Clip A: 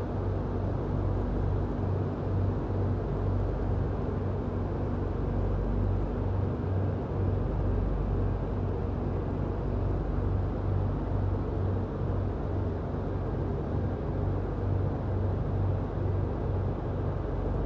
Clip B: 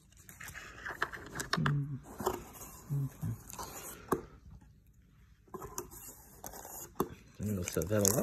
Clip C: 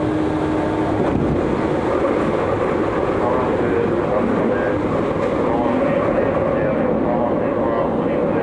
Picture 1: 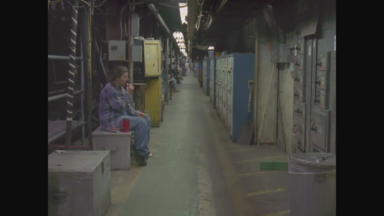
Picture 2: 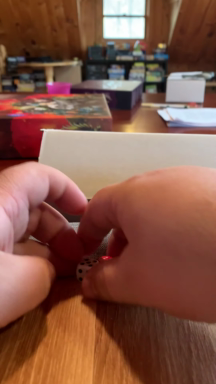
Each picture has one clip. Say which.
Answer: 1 A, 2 B